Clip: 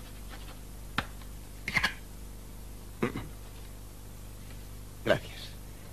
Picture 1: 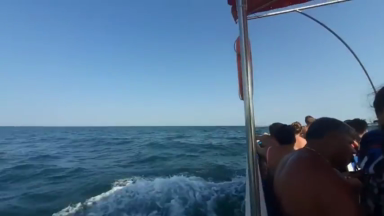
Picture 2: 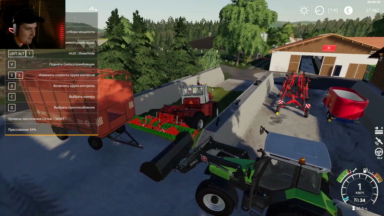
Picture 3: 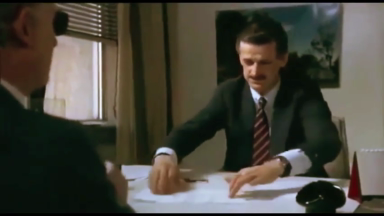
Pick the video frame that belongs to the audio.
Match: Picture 3